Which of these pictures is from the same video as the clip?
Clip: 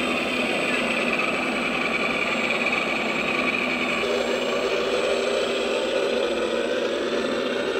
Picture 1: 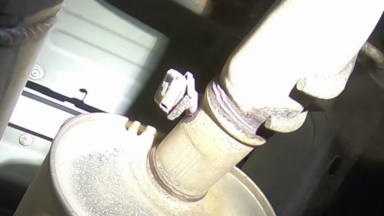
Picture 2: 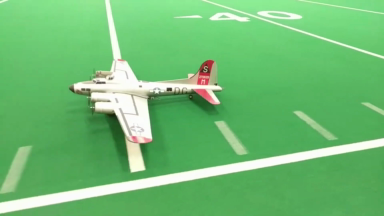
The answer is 2